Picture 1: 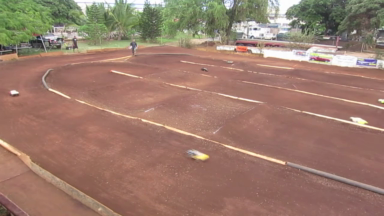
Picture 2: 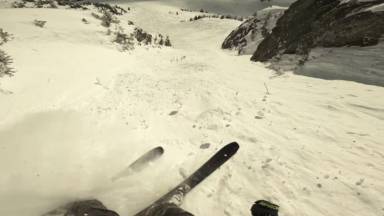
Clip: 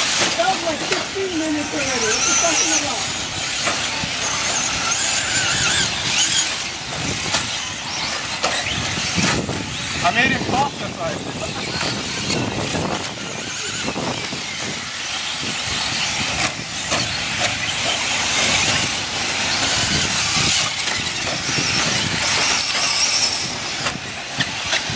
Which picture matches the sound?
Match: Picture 1